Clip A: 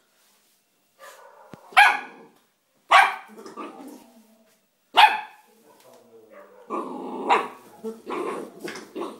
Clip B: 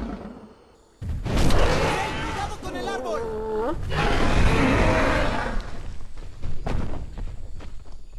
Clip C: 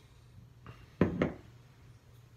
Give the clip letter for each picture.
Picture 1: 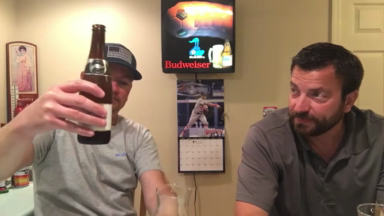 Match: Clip C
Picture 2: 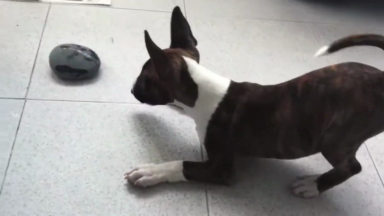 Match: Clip A